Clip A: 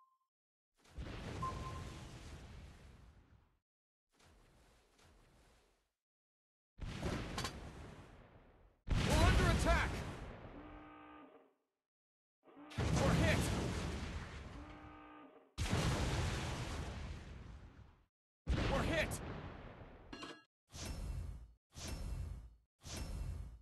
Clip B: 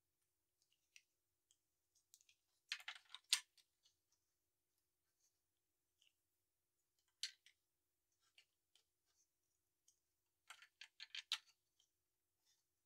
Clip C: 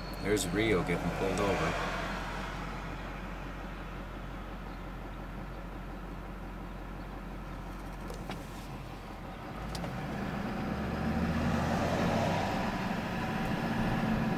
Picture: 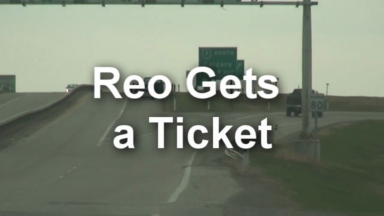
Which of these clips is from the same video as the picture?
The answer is C